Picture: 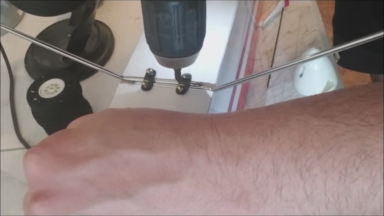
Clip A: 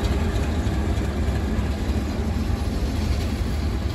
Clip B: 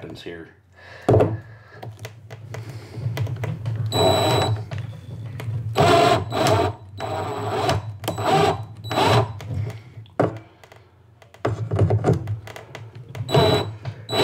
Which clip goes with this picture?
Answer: B